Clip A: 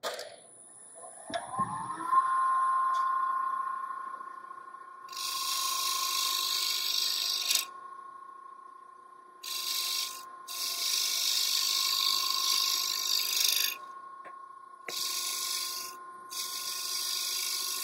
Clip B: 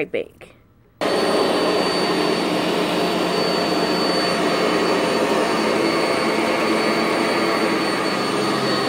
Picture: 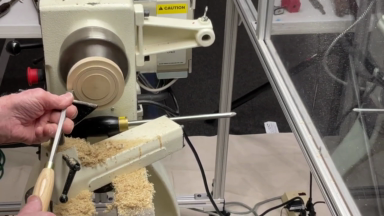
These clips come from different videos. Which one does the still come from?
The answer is A